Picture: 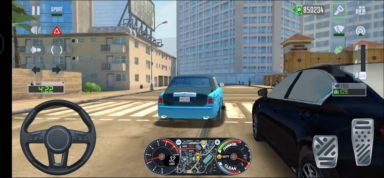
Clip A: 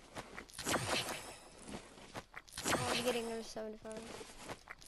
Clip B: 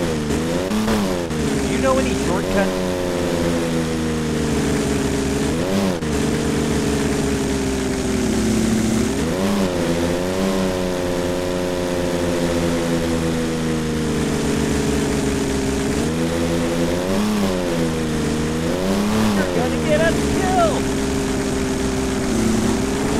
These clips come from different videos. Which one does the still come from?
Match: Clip B